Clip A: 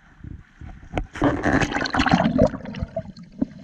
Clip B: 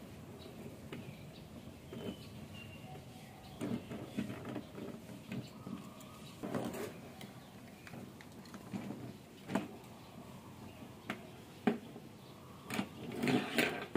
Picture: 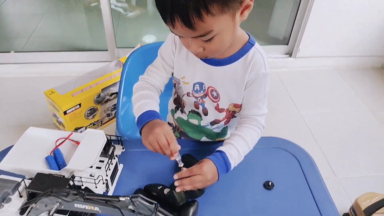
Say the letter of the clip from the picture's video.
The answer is B